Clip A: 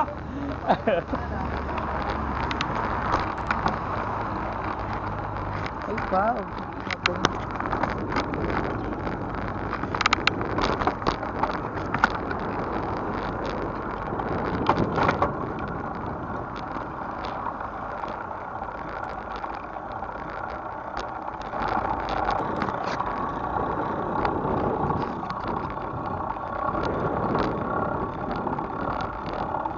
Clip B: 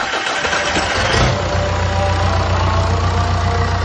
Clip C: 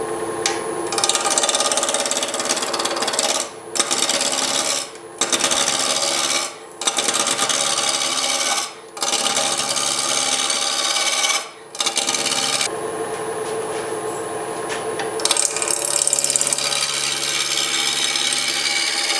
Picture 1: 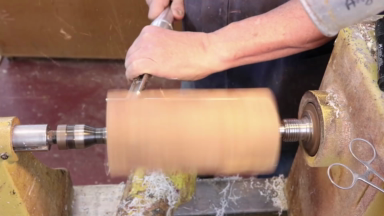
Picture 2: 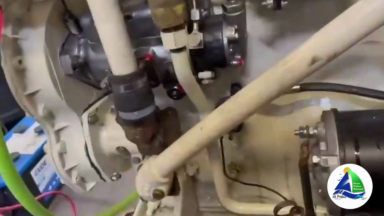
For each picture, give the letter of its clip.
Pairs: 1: C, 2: B